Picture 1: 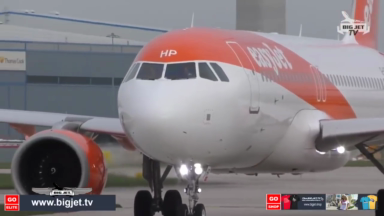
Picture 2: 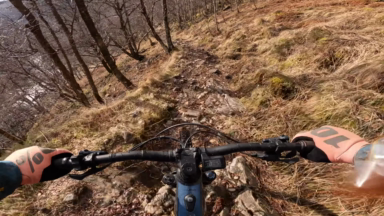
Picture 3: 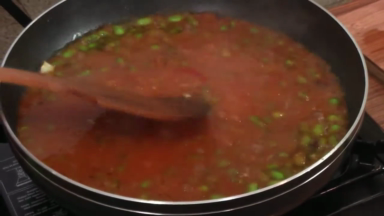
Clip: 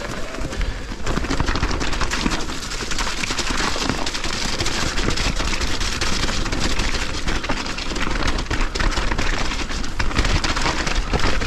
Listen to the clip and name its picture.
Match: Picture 2